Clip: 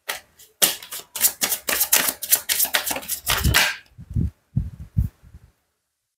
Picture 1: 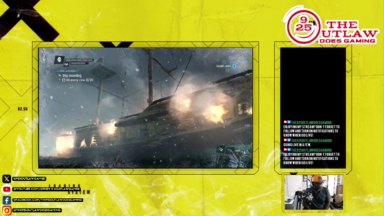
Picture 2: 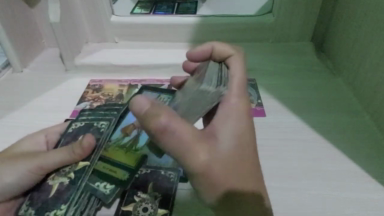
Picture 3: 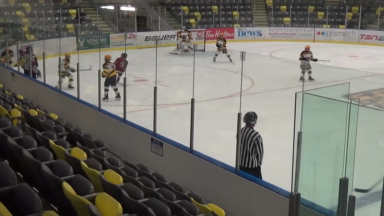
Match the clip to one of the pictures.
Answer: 2